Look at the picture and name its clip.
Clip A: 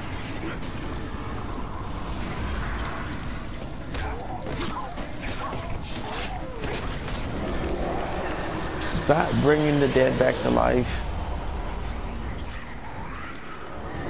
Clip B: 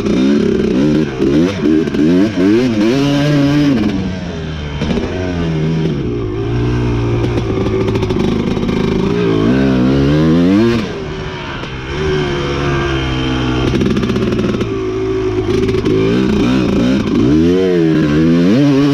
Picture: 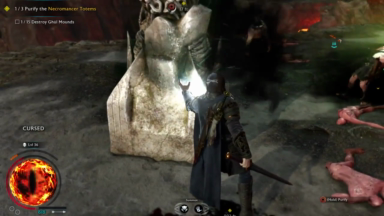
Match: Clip A